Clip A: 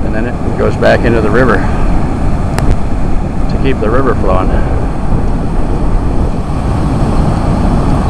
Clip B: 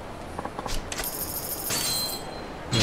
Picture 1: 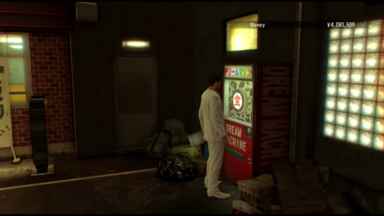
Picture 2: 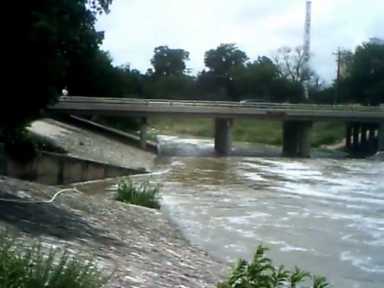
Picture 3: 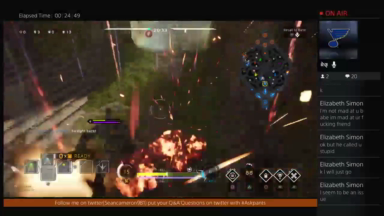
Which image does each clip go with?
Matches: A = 2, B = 1